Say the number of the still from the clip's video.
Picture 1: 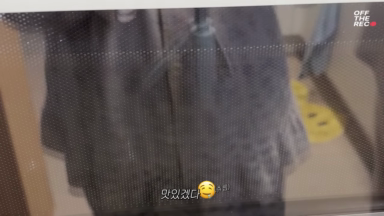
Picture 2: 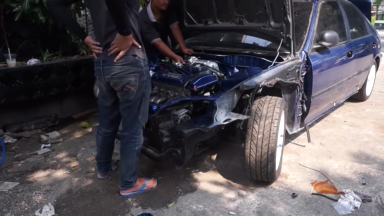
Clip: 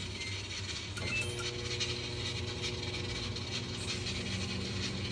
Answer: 1